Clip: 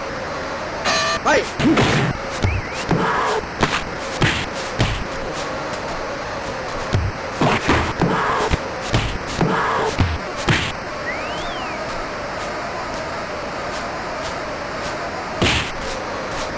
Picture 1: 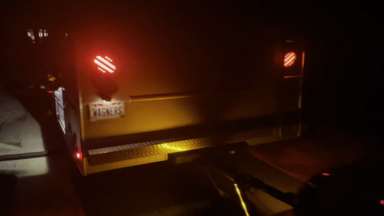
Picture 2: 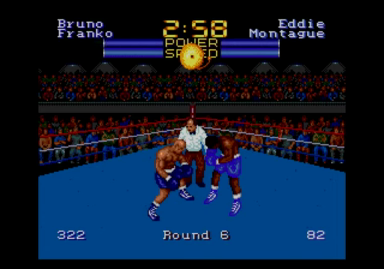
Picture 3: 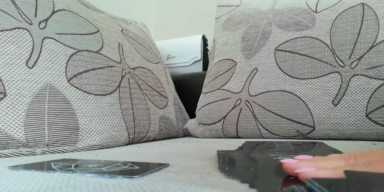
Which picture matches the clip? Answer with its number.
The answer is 2